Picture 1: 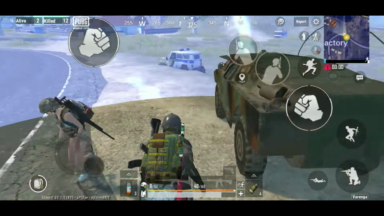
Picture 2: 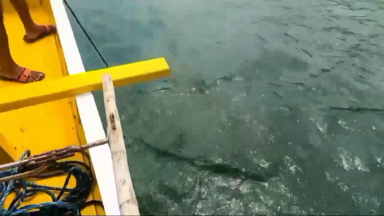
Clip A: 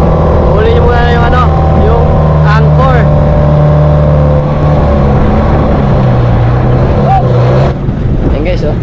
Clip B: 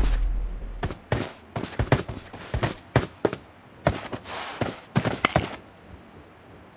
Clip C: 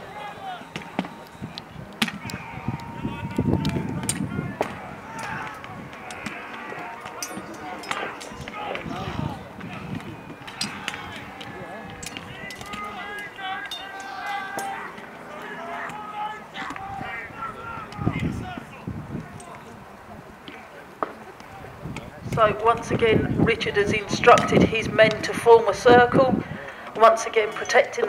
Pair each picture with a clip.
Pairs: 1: B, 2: A